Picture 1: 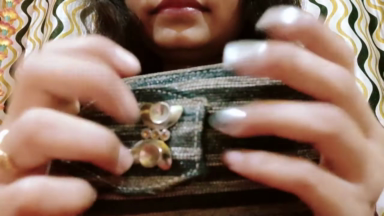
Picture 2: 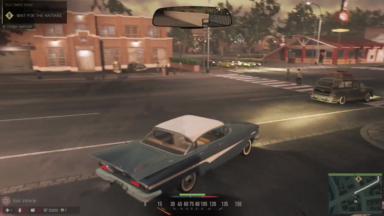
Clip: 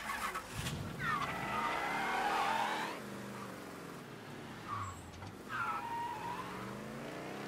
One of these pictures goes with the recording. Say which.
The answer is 2